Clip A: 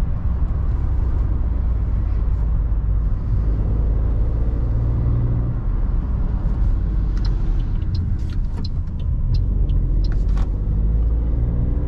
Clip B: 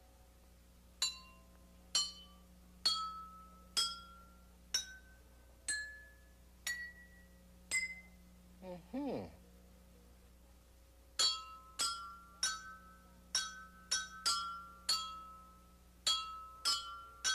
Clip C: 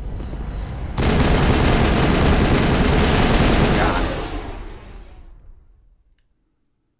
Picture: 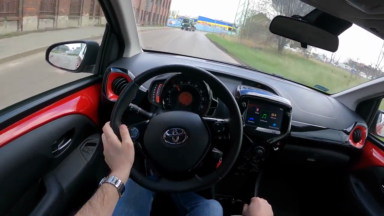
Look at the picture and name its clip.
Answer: A